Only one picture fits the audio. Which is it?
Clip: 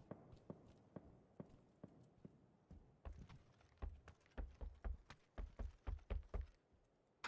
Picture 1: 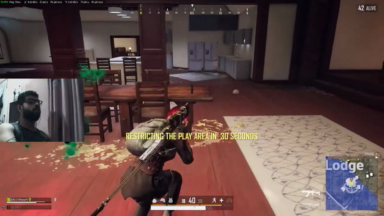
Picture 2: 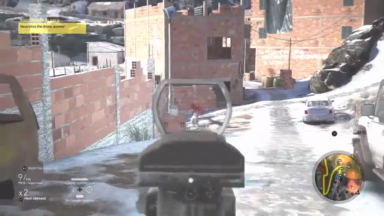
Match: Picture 1